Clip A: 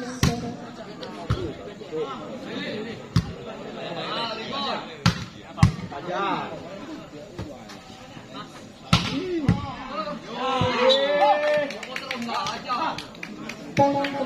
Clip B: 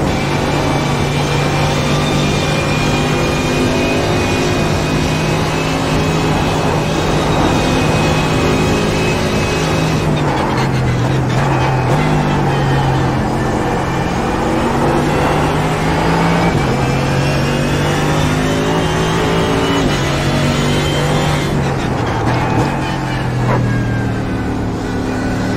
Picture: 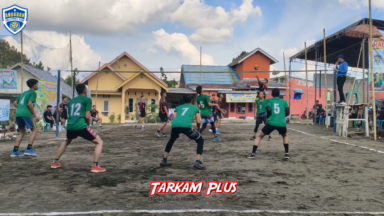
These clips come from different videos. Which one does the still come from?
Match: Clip A